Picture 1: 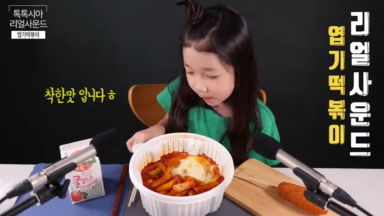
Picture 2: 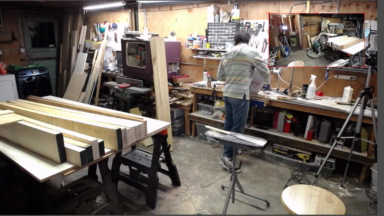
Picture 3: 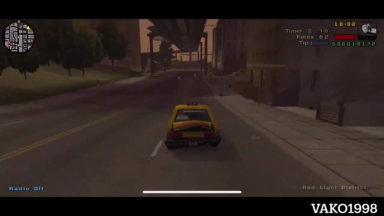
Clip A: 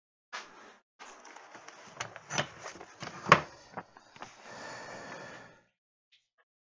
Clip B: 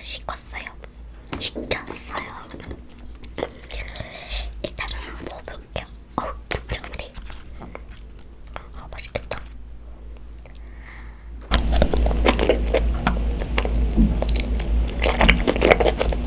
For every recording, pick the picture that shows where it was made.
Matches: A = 2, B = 1